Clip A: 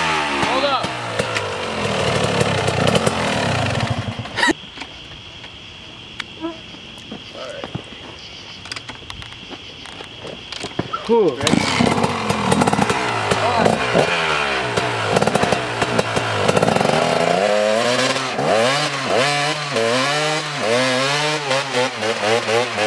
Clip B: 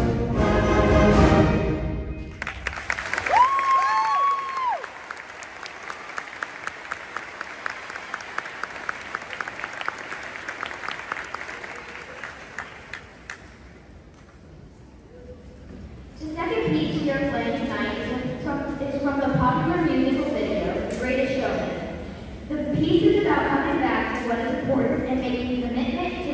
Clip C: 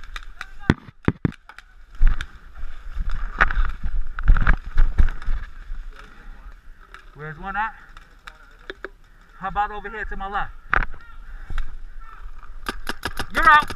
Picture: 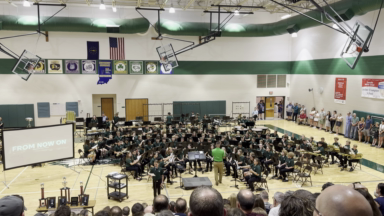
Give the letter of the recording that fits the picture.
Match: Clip B